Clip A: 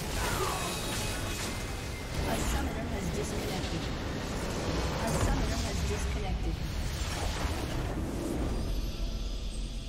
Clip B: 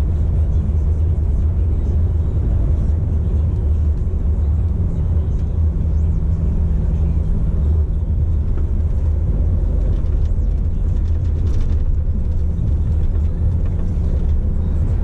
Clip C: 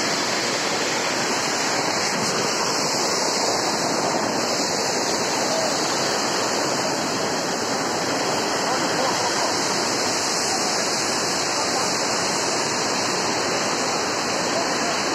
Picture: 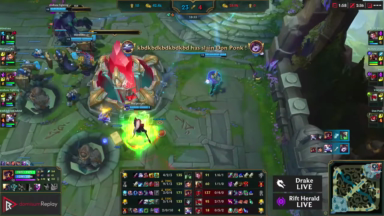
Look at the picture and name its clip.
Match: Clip A